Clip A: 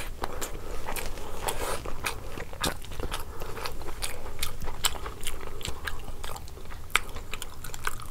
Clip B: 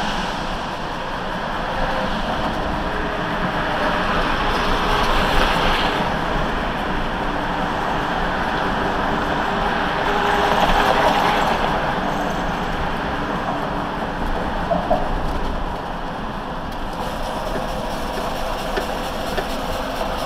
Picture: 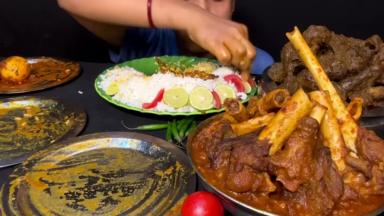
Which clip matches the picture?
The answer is A